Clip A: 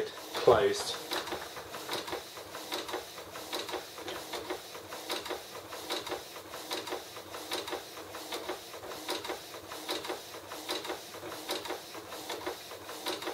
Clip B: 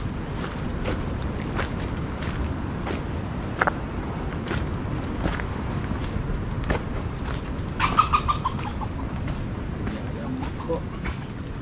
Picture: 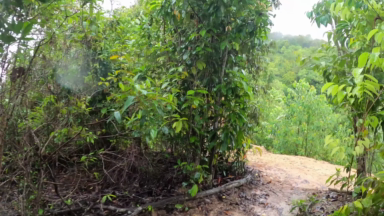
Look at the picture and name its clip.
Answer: B